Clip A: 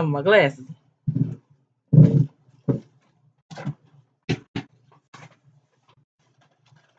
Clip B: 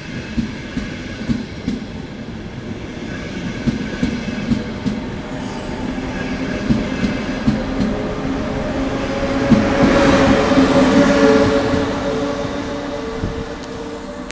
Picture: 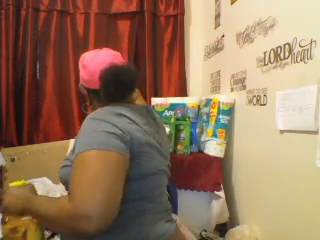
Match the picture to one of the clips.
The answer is A